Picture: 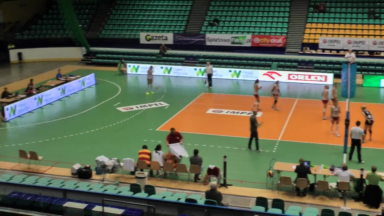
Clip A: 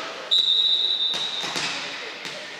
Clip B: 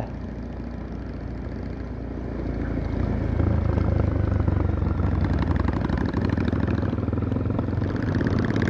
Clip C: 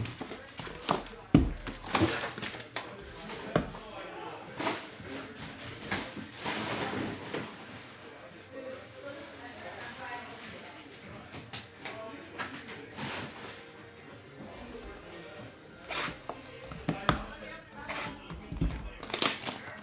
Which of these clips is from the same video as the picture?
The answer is A